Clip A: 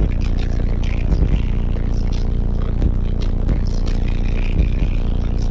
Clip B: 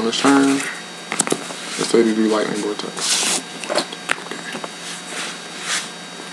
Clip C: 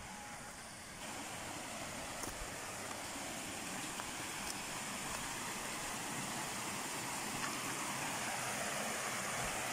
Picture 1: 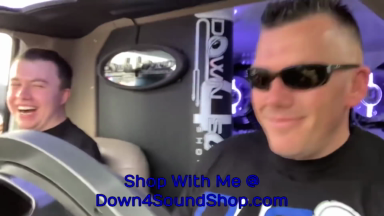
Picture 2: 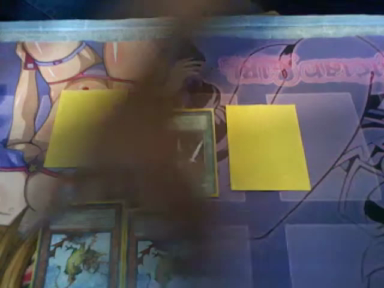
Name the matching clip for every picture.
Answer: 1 A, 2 B